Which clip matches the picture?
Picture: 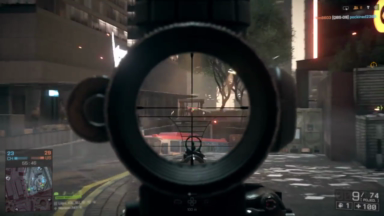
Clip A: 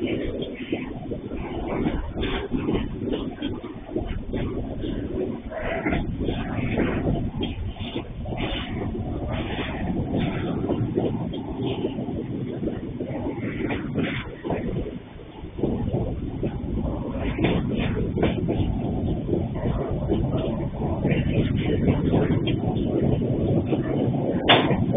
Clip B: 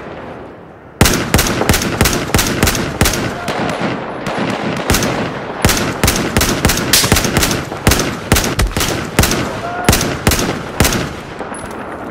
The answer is B